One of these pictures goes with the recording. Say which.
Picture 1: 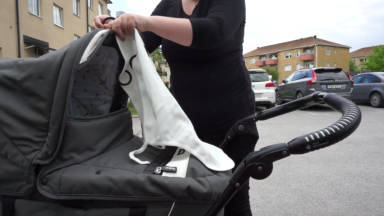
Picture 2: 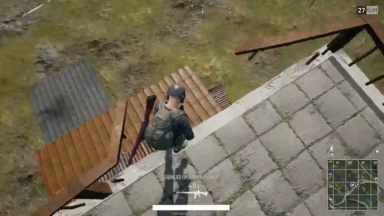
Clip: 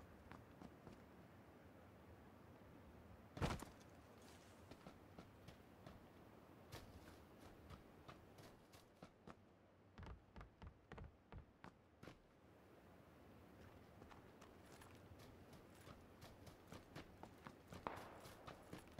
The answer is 2